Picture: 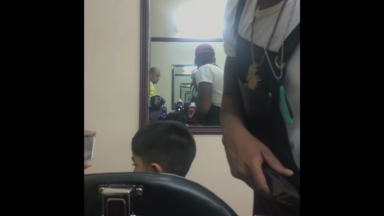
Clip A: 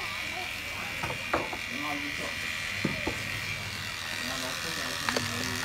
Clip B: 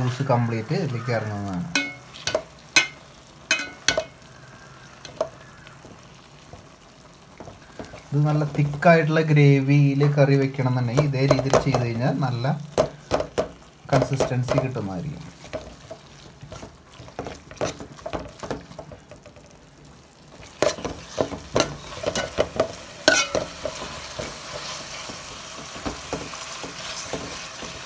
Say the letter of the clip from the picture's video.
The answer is A